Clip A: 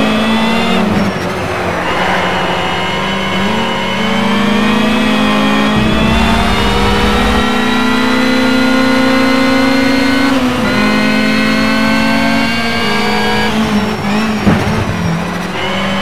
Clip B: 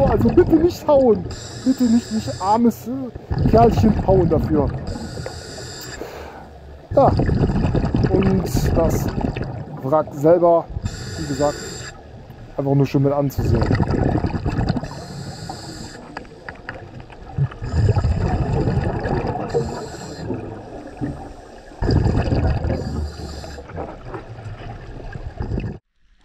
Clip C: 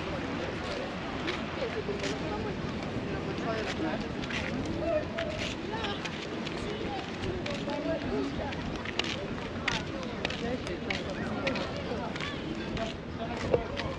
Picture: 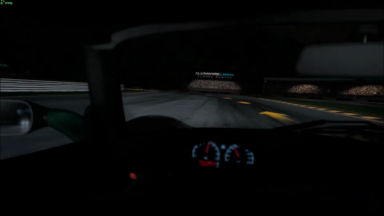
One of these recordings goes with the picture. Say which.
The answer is A